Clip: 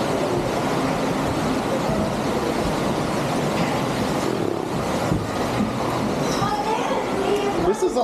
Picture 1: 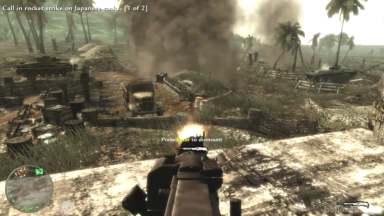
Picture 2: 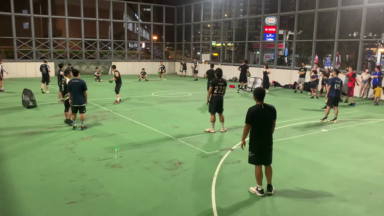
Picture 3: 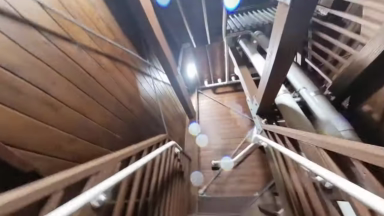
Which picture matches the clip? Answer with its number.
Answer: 3